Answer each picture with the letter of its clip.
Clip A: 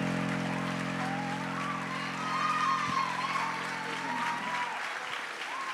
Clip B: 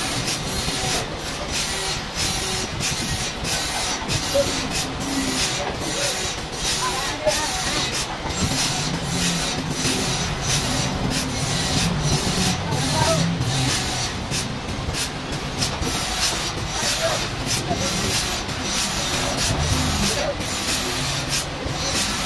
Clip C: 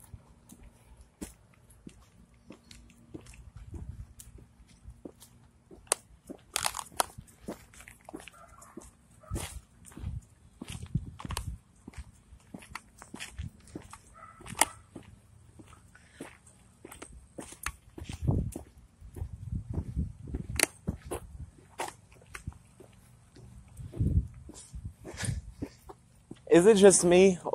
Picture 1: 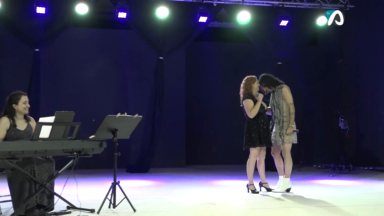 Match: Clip A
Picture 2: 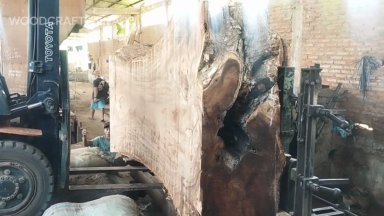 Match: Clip B